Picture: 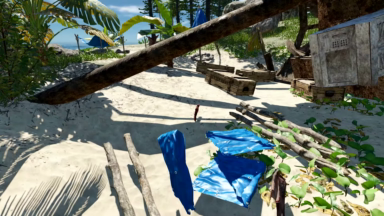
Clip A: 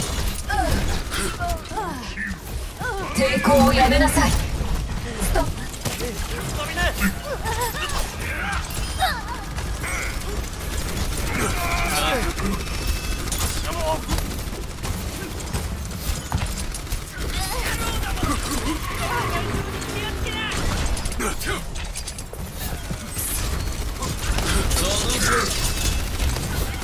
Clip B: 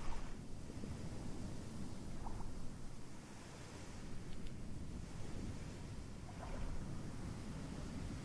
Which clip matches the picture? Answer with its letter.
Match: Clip B